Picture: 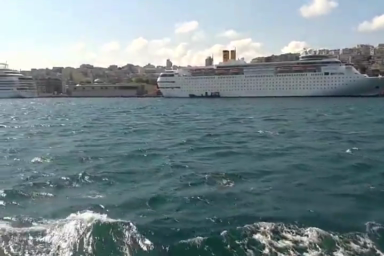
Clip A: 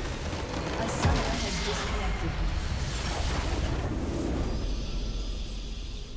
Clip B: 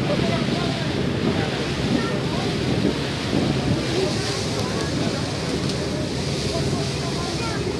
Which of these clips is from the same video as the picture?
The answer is B